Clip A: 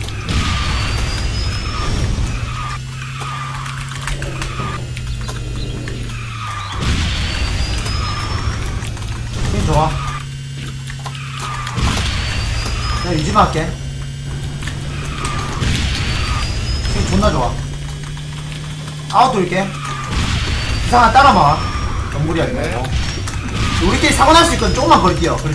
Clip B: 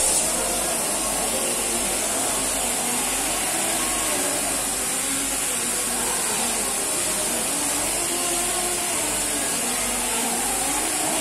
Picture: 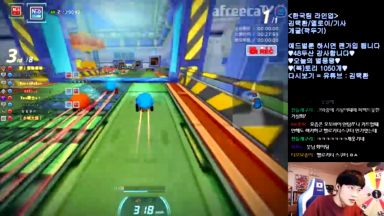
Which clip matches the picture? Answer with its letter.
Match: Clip A